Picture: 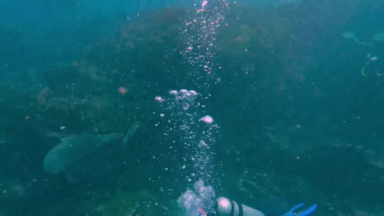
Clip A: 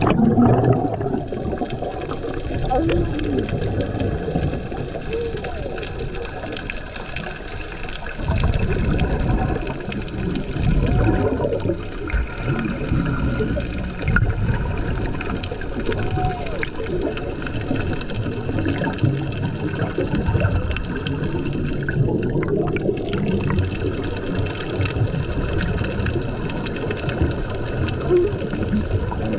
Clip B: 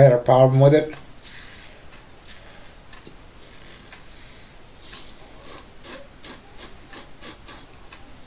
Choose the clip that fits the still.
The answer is A